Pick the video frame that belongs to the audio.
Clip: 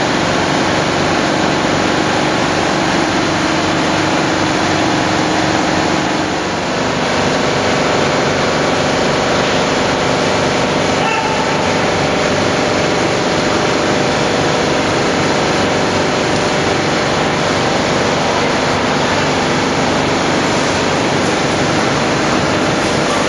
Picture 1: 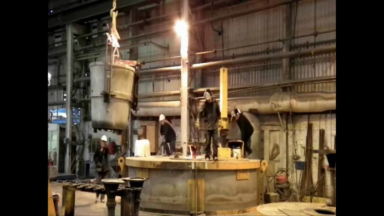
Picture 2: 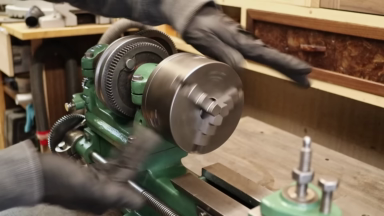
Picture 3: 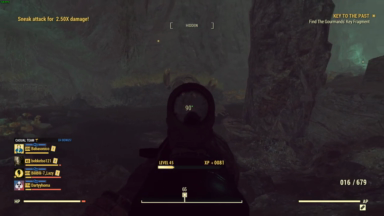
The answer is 1